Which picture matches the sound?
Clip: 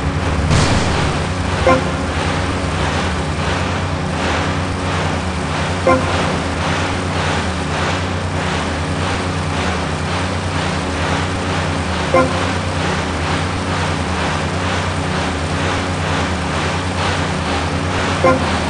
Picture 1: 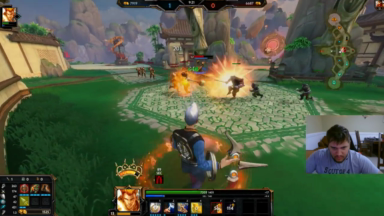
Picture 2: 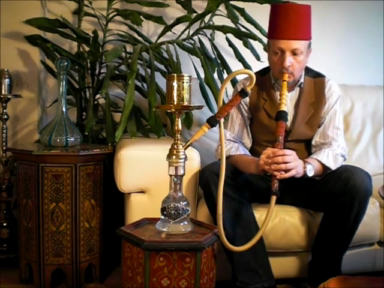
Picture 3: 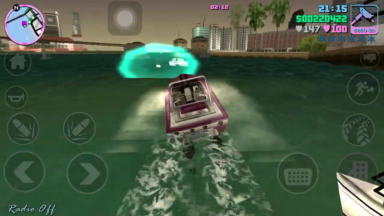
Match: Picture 3